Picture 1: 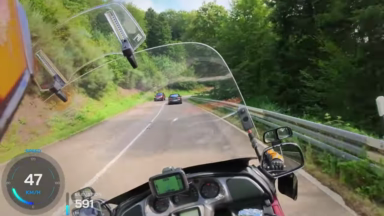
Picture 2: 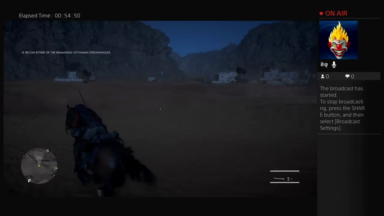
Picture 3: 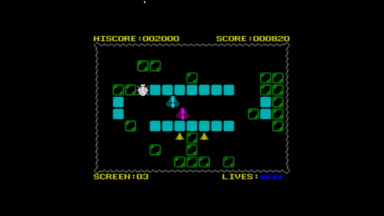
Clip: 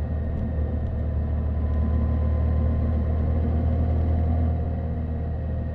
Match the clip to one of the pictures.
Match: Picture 1